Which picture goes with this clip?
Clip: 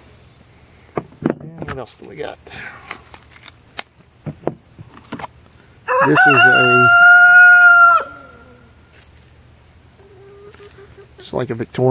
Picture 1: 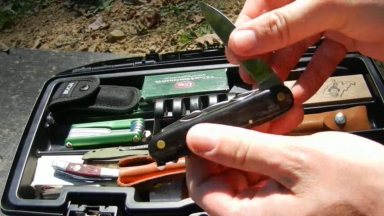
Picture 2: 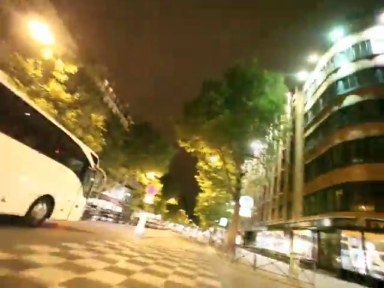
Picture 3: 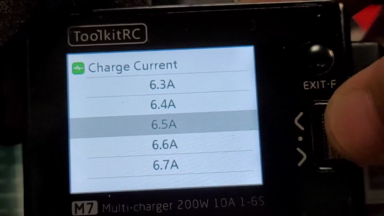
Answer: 1